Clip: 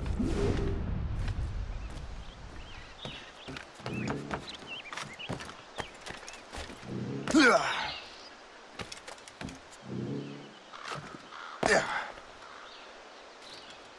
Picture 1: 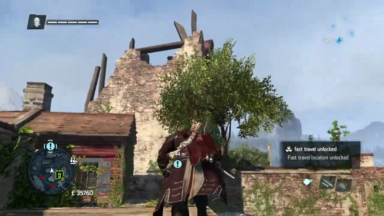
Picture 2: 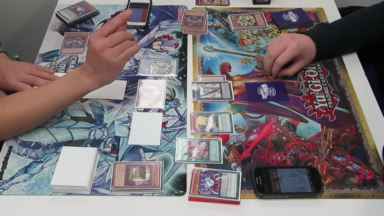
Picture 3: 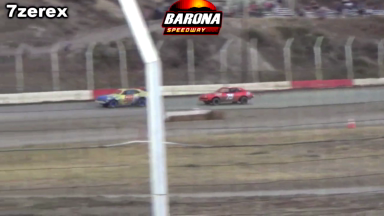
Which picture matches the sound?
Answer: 1